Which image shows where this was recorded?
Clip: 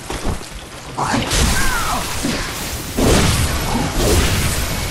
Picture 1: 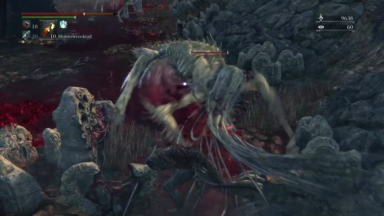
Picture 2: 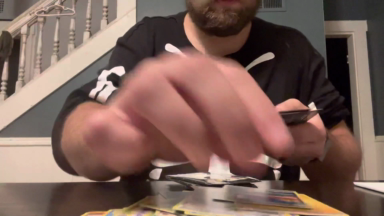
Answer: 1